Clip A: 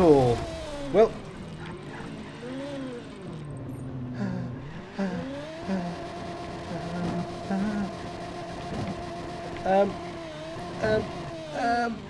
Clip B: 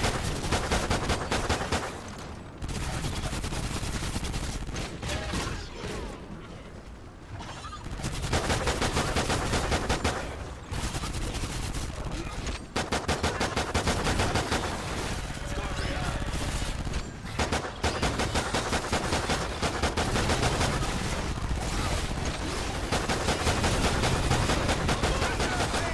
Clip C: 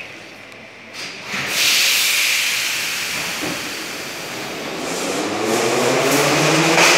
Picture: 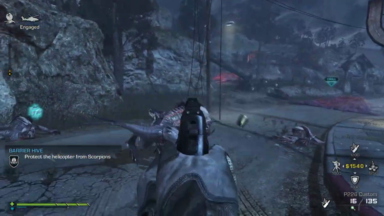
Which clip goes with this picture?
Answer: B